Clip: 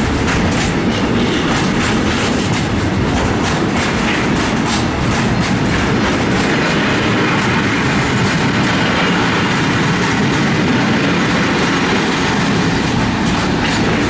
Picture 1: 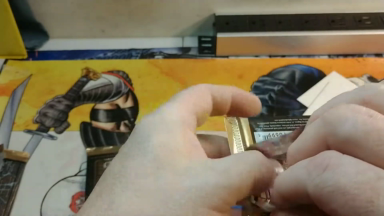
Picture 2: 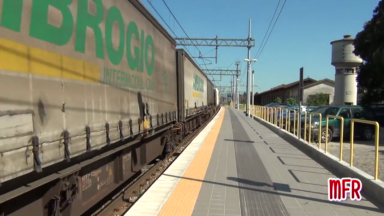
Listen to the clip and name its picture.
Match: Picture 2